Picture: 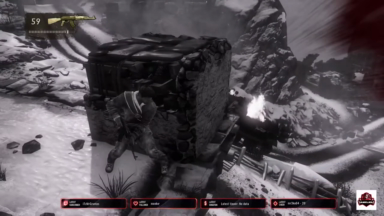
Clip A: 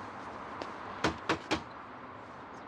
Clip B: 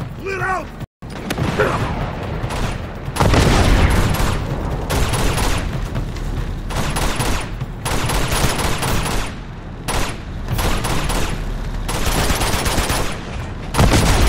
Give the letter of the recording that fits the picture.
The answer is B